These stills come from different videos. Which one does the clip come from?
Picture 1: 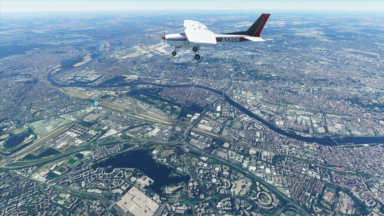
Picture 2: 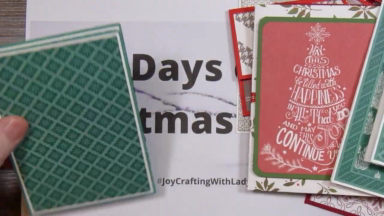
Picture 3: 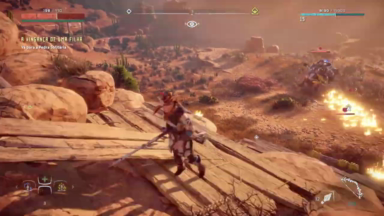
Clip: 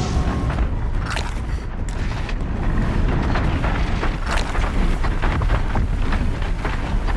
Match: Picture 3